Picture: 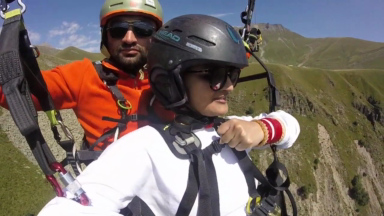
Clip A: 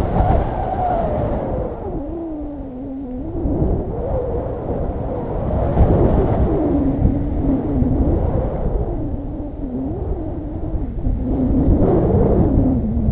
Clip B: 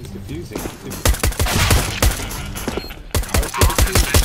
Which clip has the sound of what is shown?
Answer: A